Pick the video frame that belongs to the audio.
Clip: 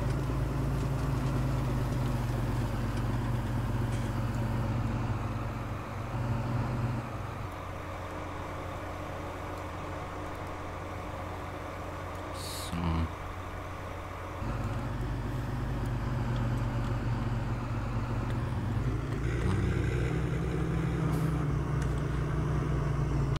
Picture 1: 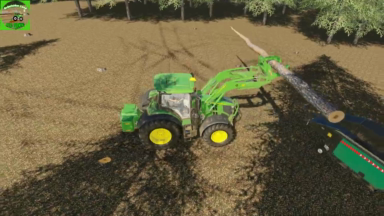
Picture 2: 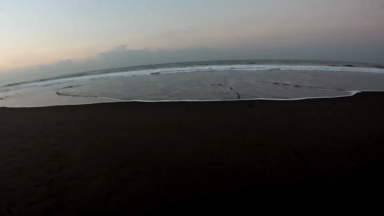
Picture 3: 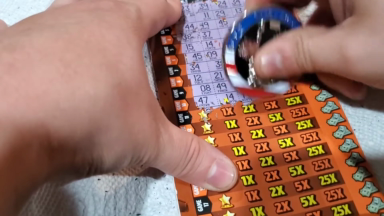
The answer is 1